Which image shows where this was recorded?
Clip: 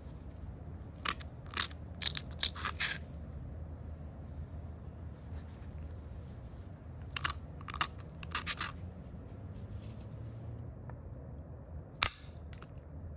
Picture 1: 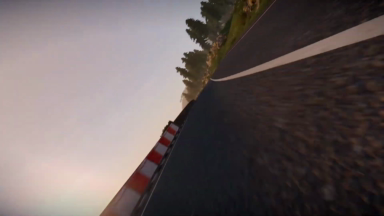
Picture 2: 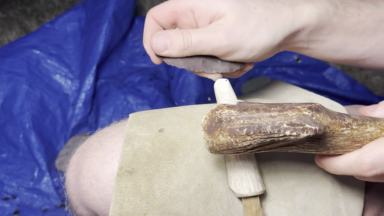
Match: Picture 2